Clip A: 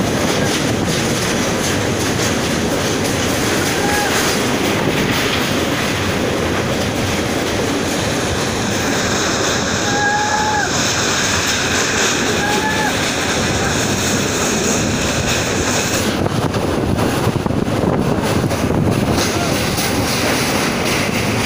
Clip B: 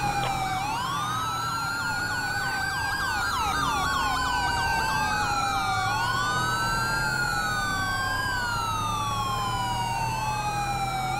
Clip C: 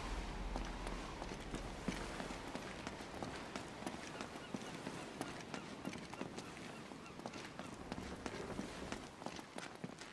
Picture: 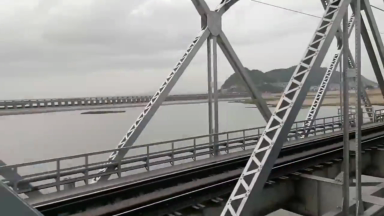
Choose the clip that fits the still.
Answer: A